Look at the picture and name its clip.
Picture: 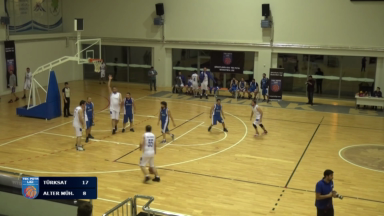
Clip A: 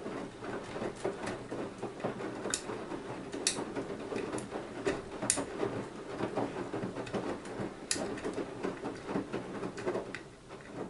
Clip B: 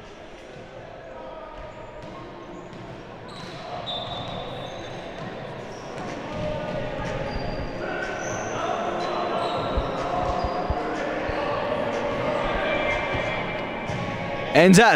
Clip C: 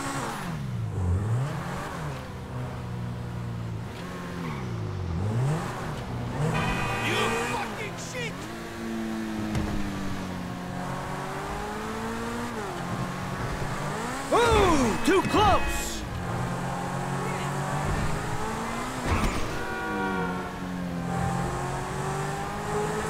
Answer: B